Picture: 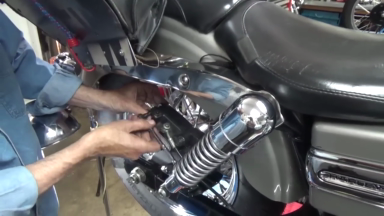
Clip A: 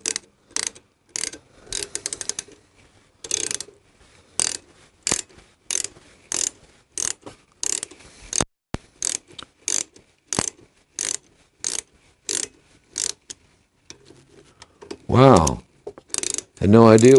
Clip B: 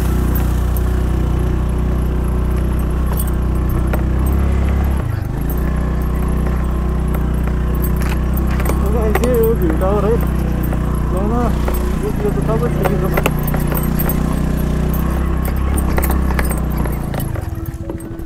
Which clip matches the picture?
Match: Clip A